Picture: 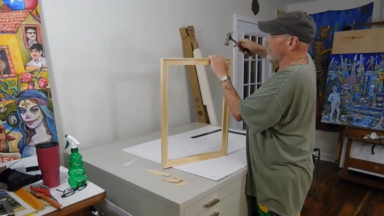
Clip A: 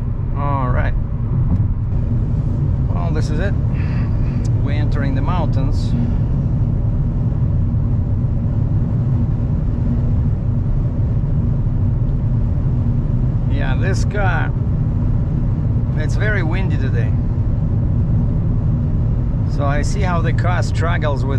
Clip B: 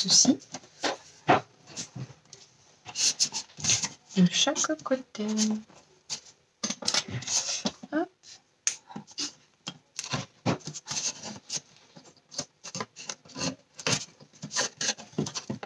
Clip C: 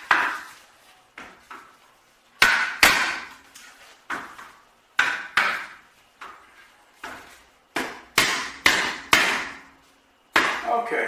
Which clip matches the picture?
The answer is C